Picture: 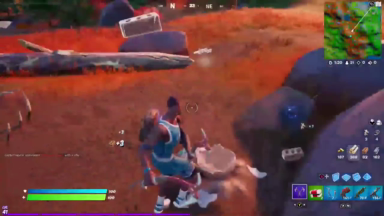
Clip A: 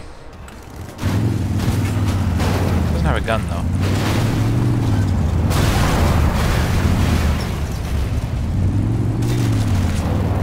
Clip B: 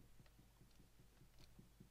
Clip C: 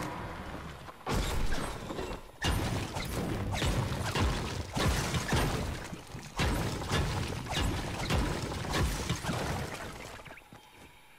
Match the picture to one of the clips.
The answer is C